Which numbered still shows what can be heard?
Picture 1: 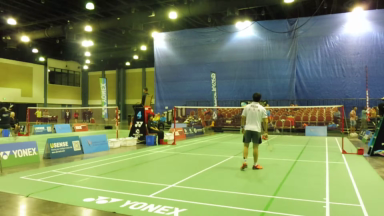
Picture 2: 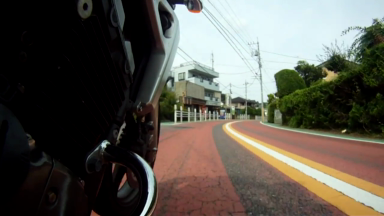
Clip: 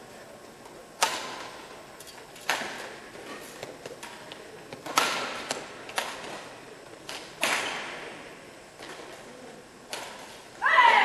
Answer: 1